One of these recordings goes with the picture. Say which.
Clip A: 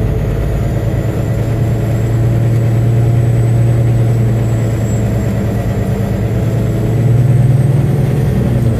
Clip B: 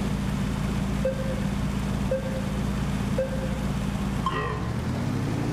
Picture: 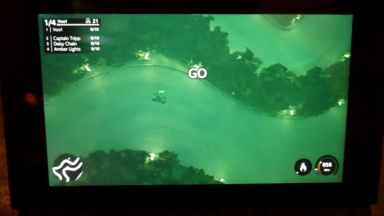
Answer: B